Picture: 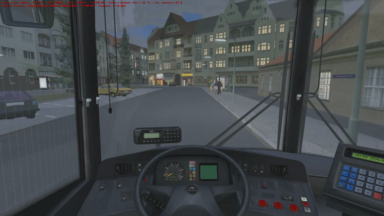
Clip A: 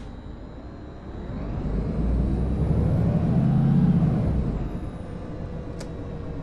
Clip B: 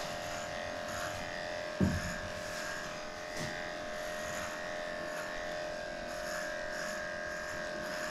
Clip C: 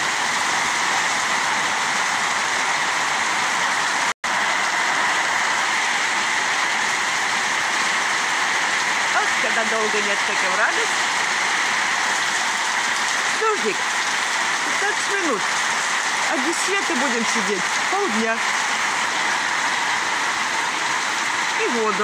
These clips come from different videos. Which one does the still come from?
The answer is A